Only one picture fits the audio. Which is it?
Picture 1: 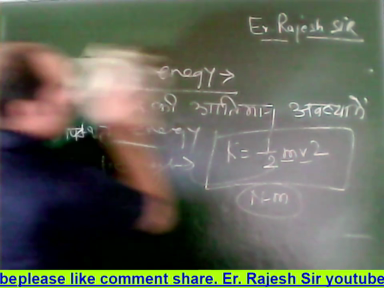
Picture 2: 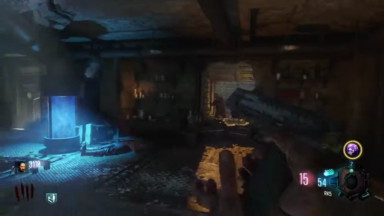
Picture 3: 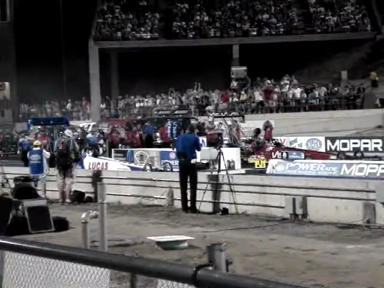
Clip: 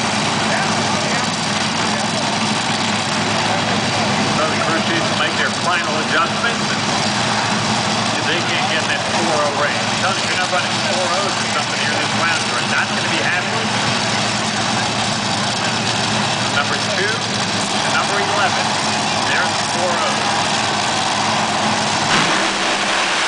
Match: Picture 3